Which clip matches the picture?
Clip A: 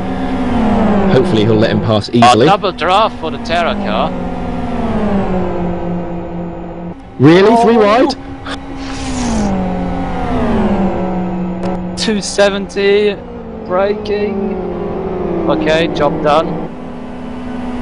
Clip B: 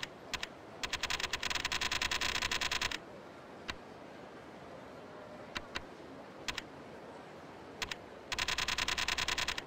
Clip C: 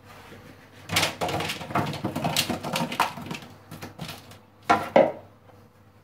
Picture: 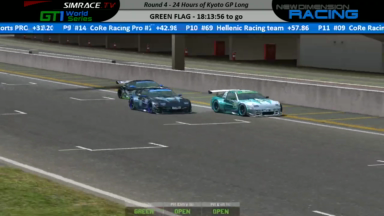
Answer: A